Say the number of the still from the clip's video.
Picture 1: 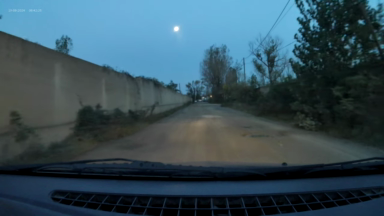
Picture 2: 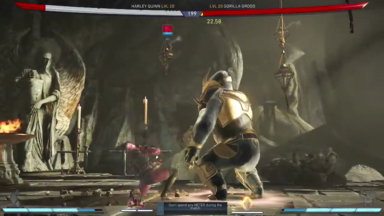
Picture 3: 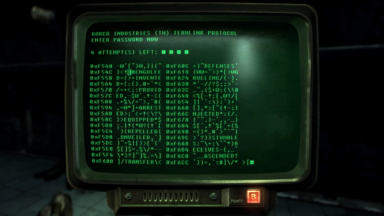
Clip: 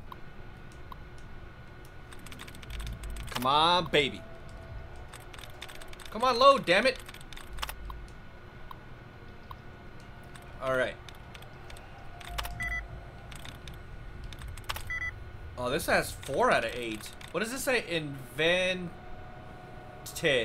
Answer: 3